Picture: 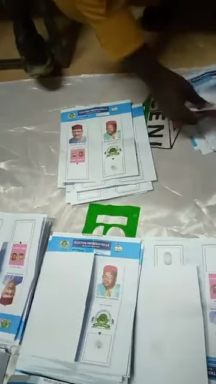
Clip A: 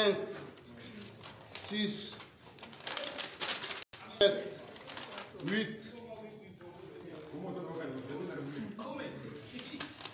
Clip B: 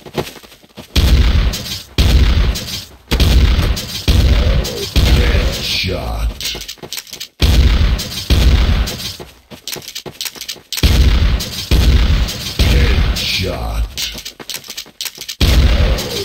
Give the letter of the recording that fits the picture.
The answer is A